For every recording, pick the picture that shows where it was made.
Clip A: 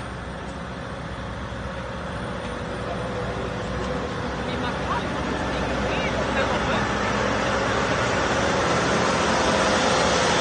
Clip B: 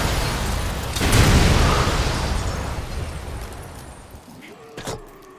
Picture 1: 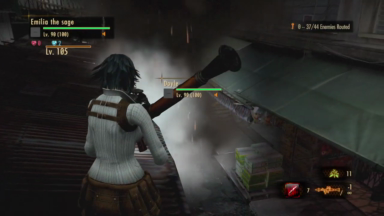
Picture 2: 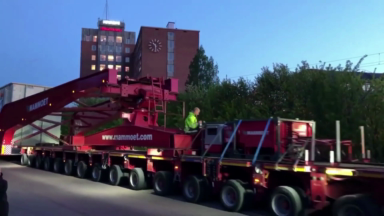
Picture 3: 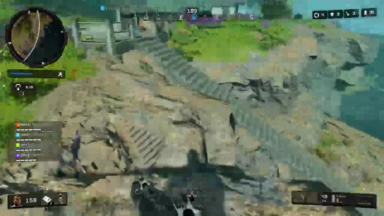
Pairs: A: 2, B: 1